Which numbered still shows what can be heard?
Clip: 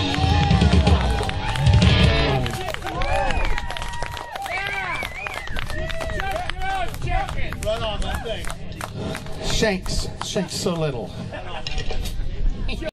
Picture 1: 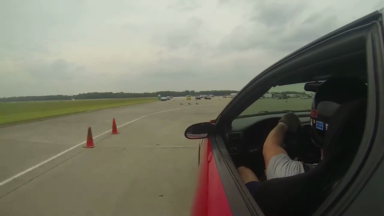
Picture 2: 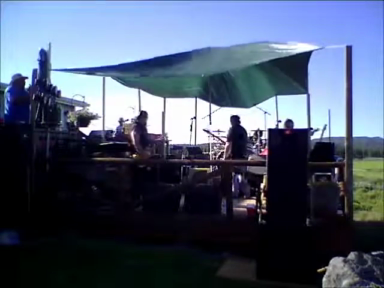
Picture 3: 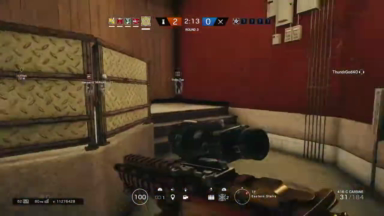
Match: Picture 2